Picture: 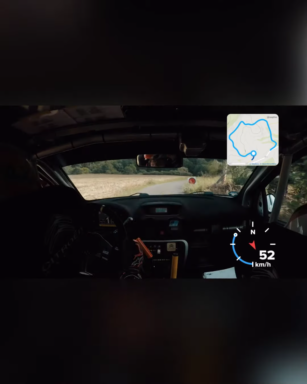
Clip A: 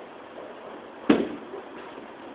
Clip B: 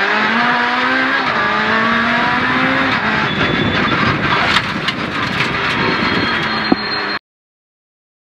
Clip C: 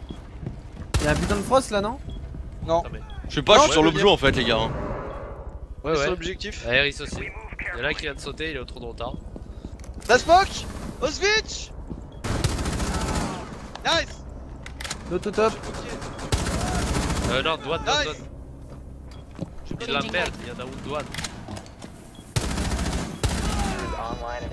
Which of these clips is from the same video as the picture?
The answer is B